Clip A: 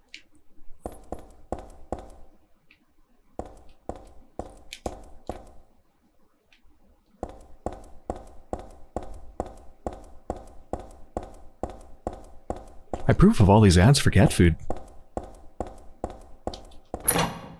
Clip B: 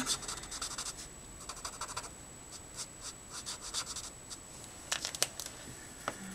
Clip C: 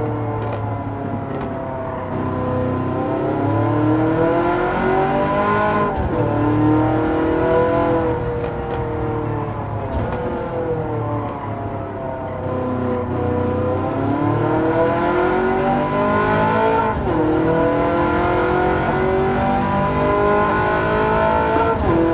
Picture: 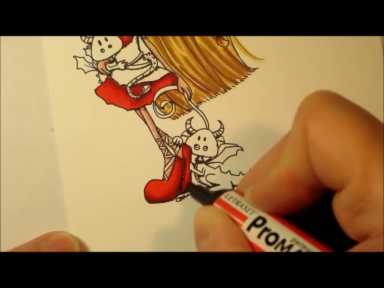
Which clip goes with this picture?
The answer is B